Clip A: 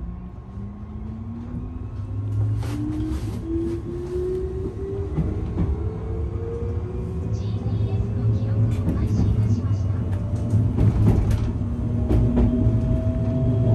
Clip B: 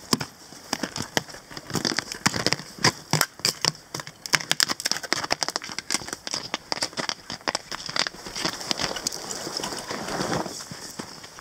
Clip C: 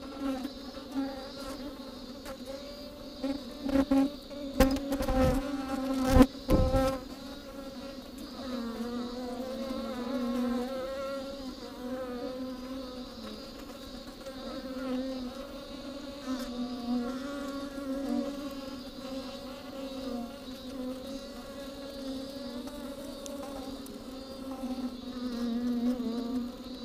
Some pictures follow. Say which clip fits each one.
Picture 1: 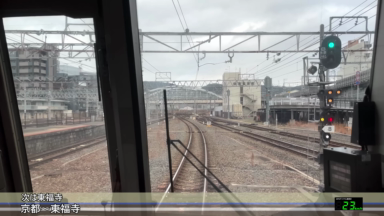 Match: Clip A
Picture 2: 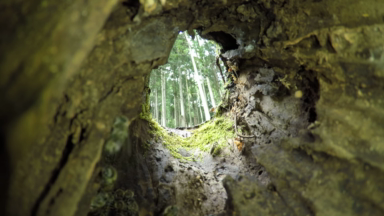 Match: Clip C